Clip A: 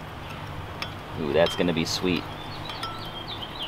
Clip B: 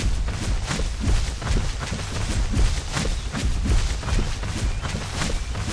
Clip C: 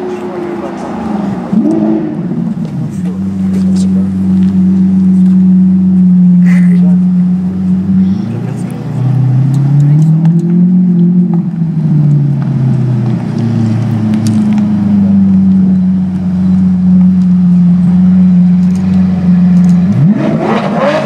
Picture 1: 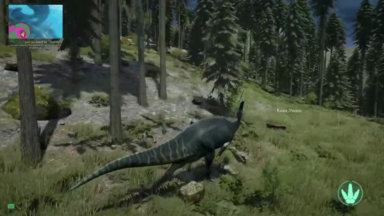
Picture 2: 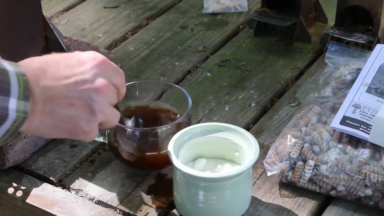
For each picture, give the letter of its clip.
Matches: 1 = B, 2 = A